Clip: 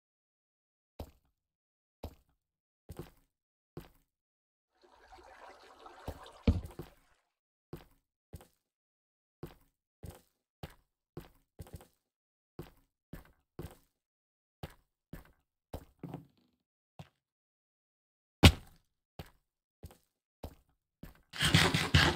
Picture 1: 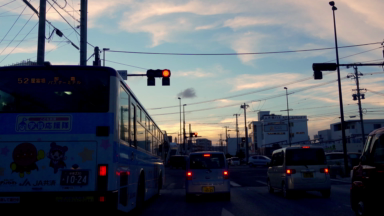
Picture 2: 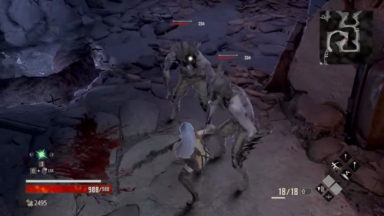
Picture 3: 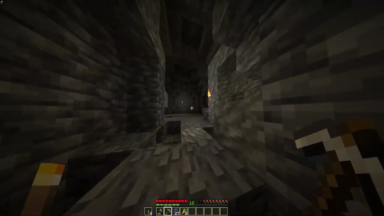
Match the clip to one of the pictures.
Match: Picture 3